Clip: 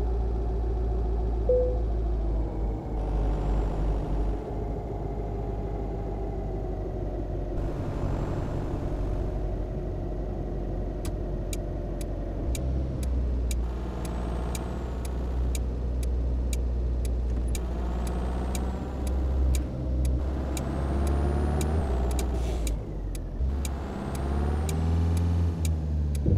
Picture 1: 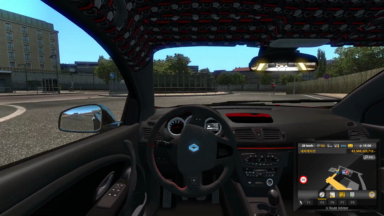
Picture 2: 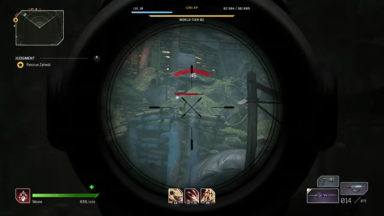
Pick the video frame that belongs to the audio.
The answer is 1